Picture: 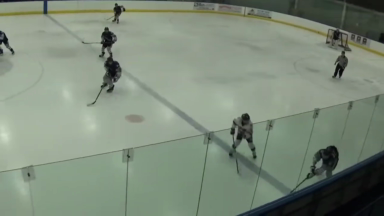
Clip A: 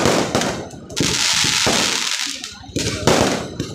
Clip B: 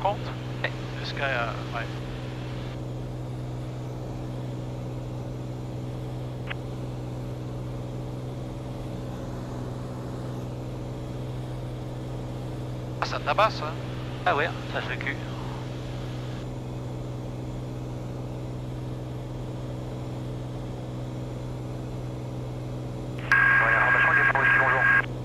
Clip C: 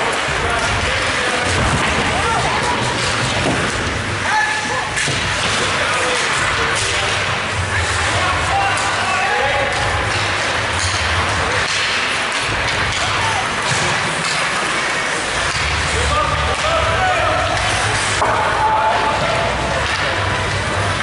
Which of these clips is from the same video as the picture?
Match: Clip C